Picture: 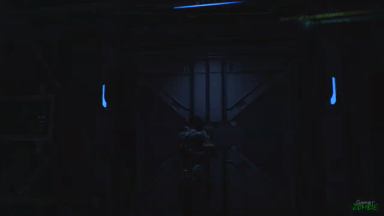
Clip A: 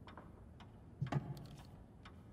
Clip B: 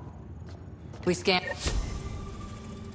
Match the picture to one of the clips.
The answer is B